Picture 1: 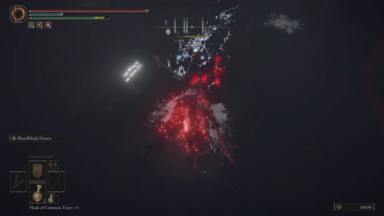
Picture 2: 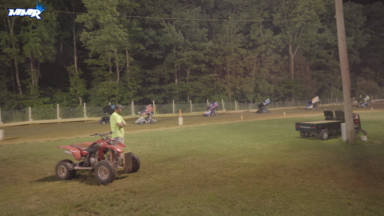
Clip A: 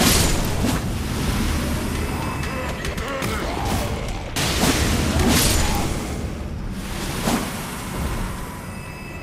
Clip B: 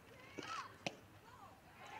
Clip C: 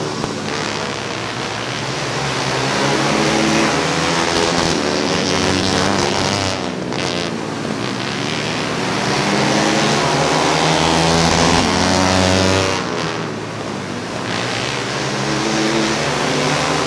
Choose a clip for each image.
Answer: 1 A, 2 C